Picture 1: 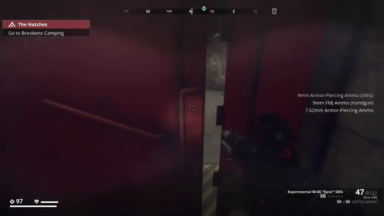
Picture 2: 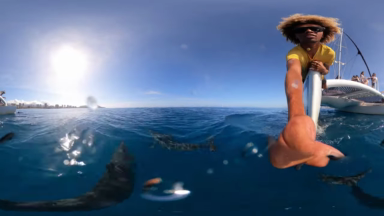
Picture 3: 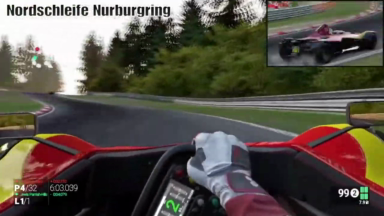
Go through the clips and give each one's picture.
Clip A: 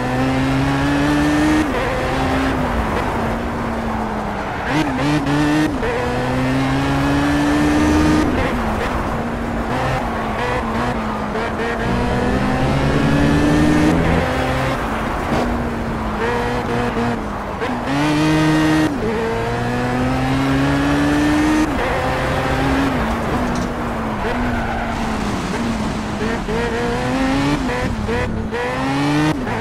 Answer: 3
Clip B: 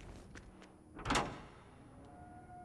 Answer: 1